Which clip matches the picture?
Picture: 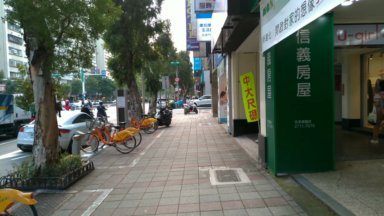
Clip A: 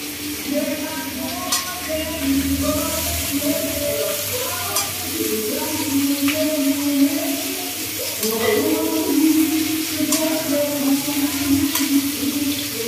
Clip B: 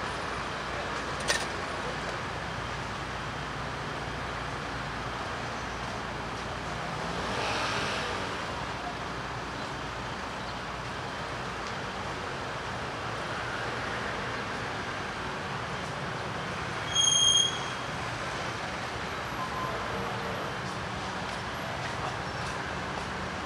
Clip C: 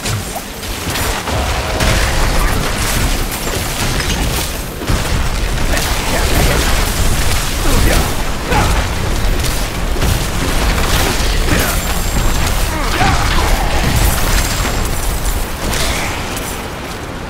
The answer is B